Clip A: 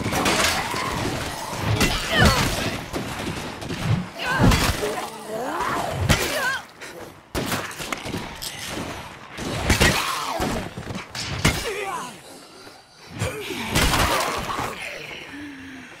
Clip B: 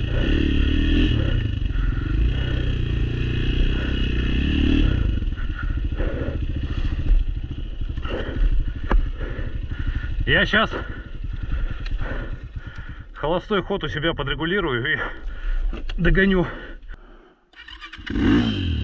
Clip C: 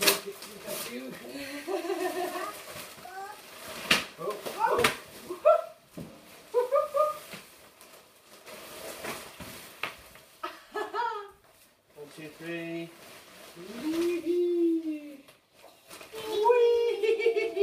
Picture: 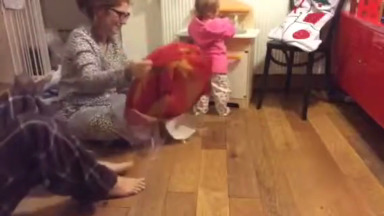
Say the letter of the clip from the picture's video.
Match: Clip C